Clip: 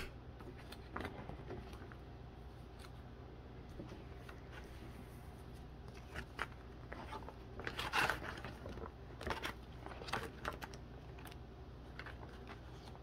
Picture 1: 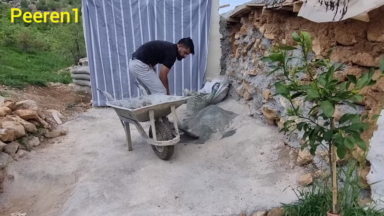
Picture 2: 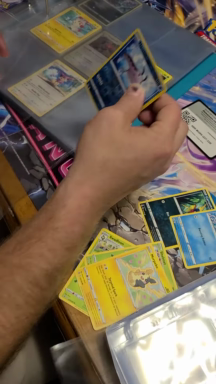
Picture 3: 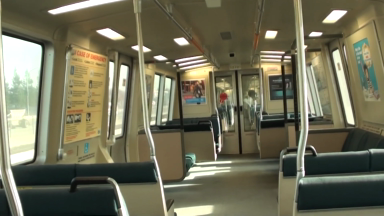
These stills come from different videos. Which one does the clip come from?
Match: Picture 2